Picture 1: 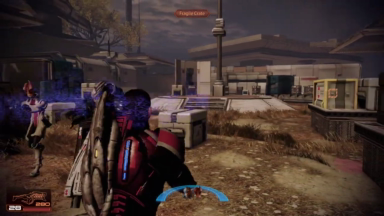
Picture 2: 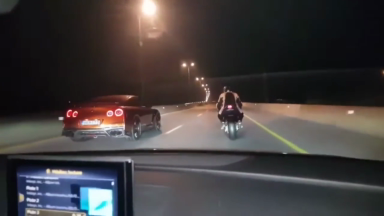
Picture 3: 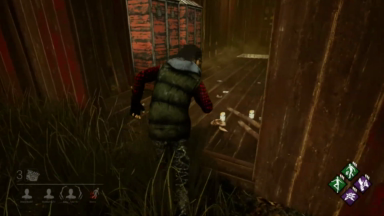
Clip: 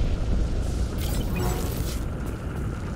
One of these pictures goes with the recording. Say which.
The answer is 1